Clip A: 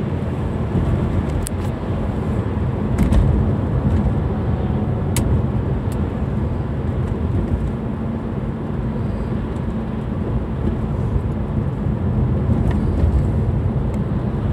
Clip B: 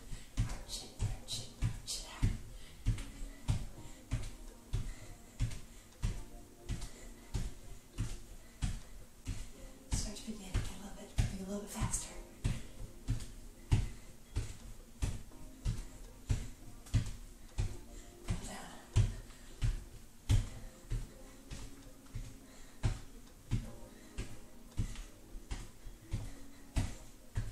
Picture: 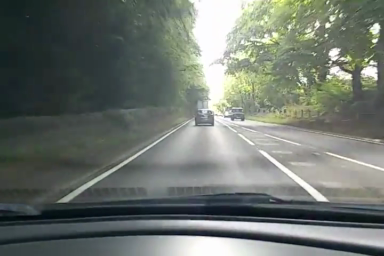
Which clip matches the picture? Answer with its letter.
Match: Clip A